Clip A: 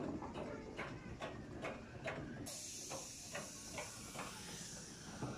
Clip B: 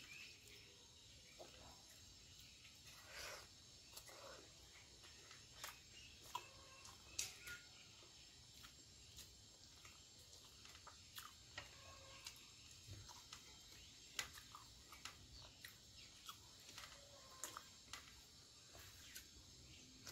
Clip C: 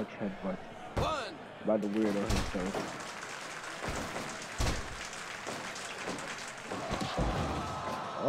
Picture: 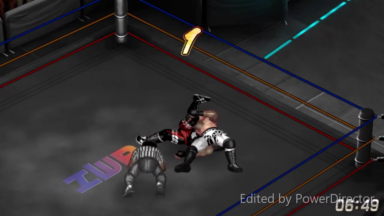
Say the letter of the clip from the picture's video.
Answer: C